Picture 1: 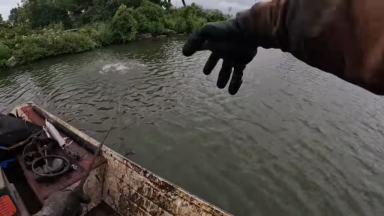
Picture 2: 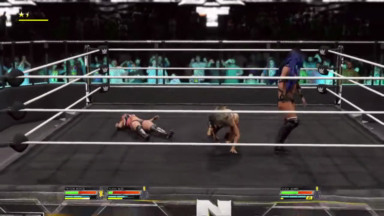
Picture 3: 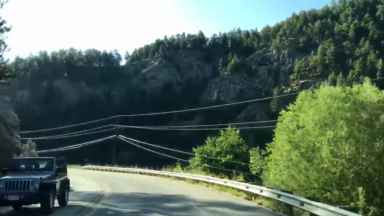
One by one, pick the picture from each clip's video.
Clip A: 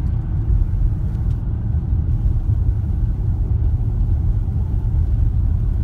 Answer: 3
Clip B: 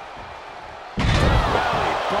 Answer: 2